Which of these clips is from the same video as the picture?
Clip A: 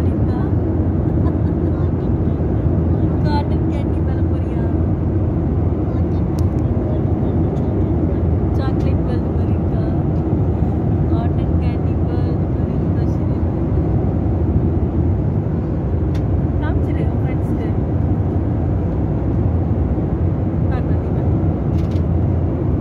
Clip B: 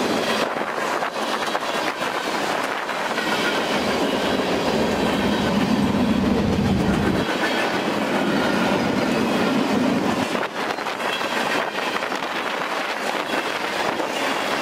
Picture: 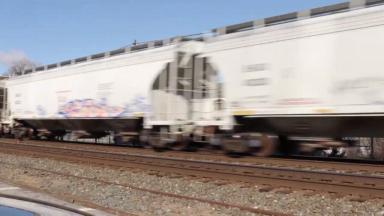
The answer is B